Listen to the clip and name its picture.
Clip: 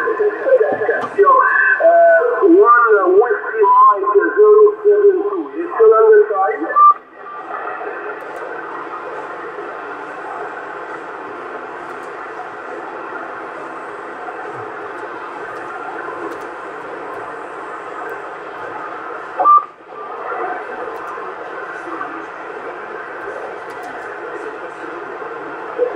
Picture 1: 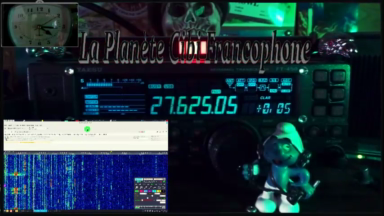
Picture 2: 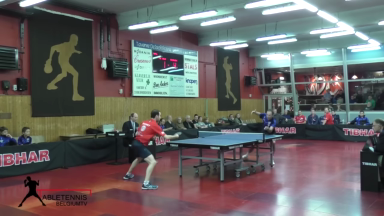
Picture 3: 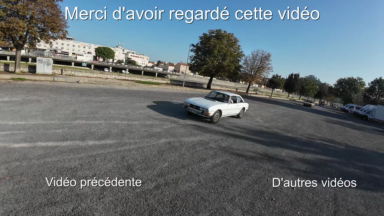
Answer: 1